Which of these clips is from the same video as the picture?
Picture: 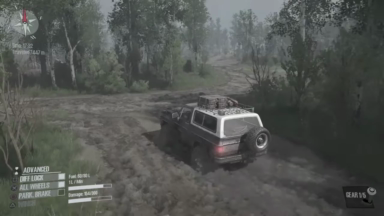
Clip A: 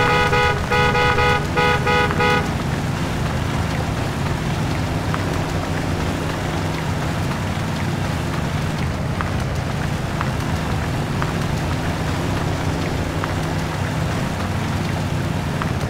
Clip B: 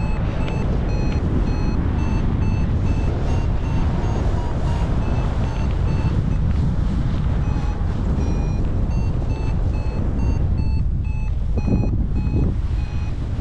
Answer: A